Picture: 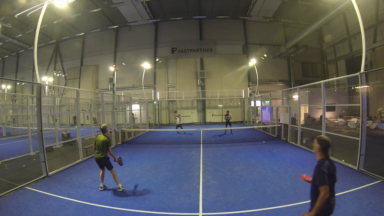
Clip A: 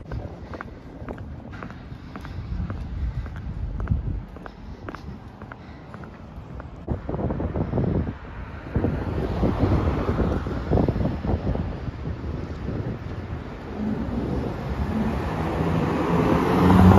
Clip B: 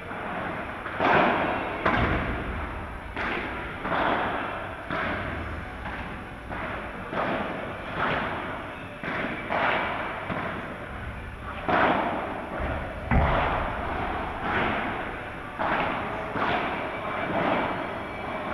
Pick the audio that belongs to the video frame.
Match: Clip B